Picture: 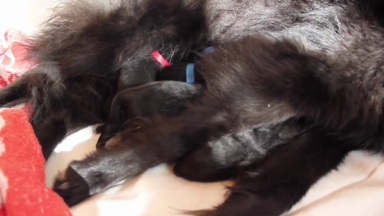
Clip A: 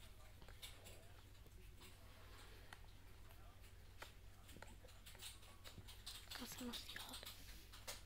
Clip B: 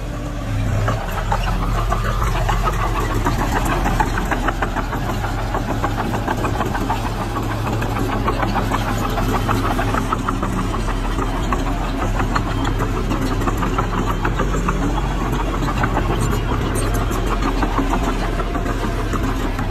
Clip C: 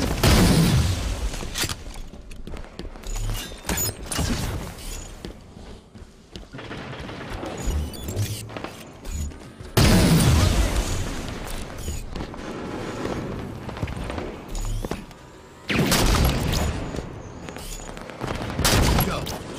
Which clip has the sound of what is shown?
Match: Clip A